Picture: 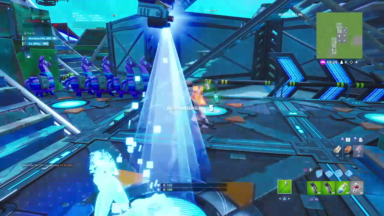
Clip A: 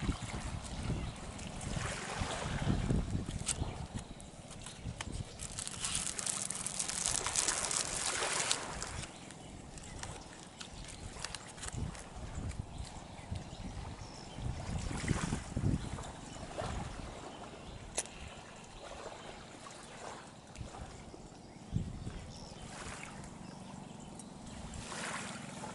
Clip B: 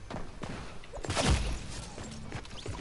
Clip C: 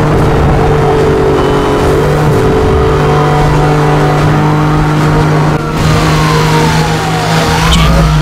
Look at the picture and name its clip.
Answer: B